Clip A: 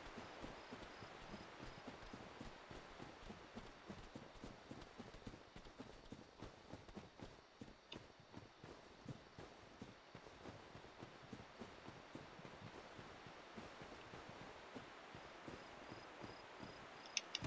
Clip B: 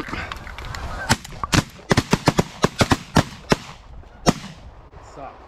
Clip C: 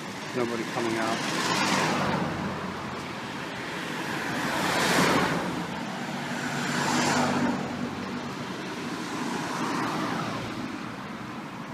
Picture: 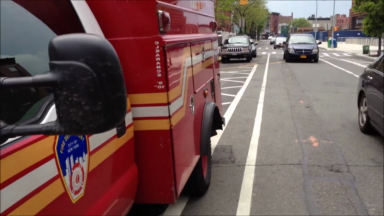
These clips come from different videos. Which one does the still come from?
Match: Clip C